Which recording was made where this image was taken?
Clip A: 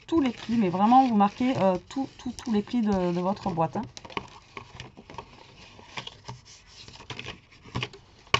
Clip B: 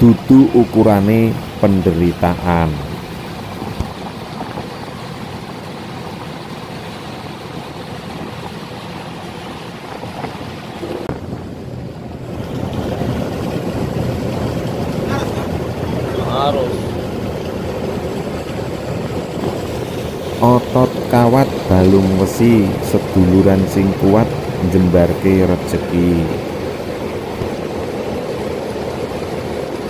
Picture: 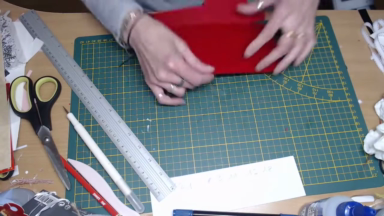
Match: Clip A